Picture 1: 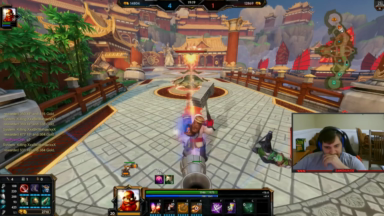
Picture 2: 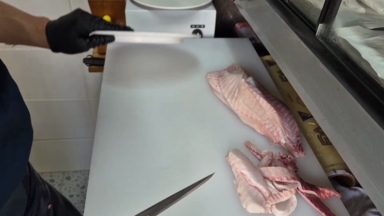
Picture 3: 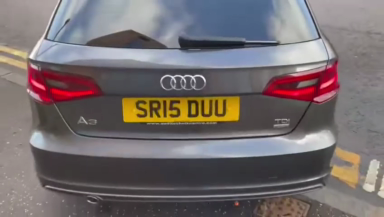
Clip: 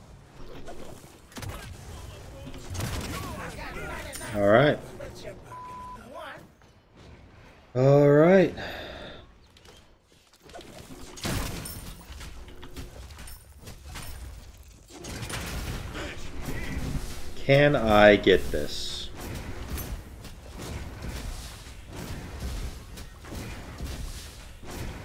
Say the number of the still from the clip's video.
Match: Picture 1